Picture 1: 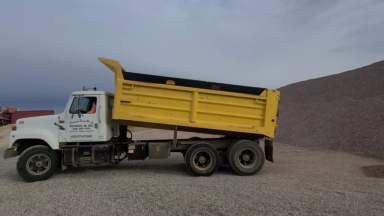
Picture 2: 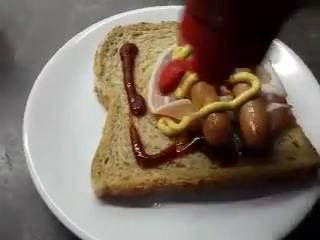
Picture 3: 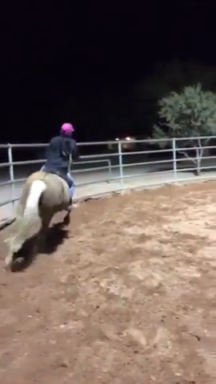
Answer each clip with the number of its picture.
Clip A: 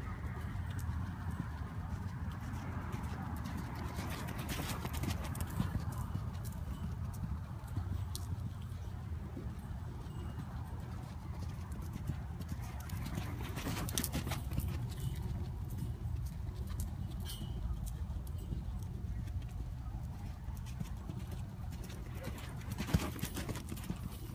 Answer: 3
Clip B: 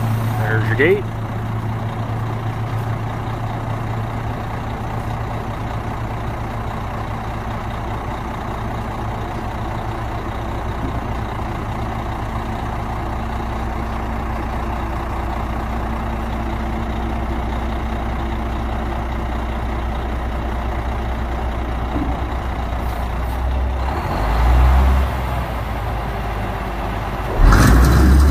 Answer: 1